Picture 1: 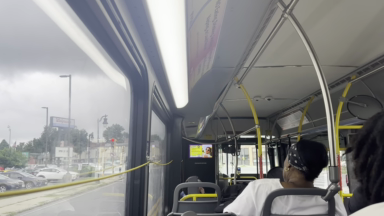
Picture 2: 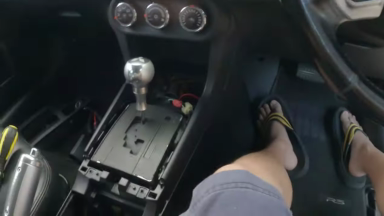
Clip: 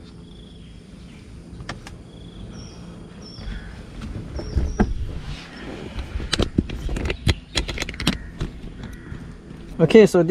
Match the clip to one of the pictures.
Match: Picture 2